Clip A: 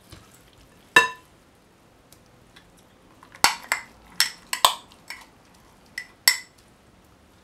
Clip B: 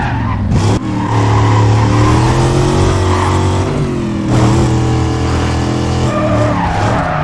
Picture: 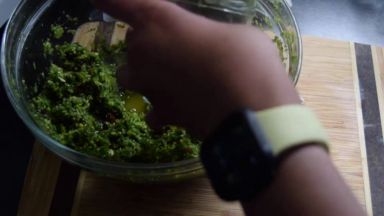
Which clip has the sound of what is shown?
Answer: A